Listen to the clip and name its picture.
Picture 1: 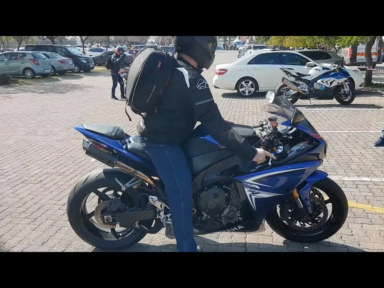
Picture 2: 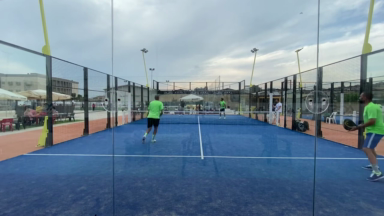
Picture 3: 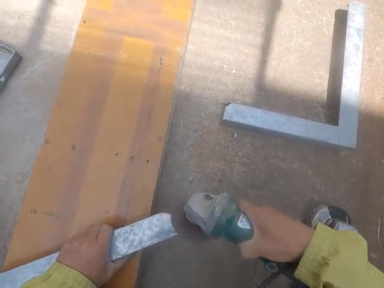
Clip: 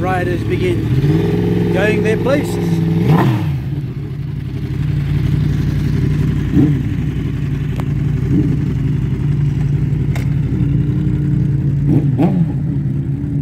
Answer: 1